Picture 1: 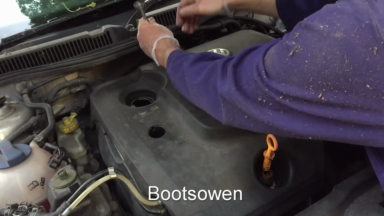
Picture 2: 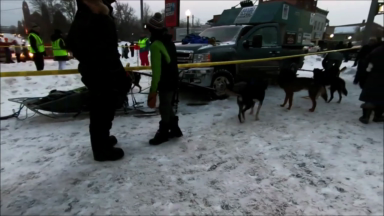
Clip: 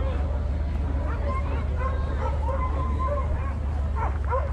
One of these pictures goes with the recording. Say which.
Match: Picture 2